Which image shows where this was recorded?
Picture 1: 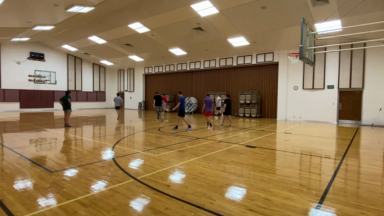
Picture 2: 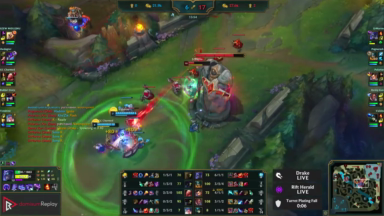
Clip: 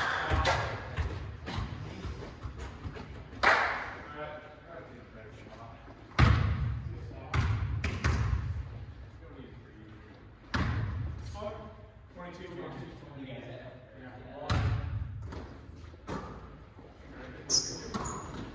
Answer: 1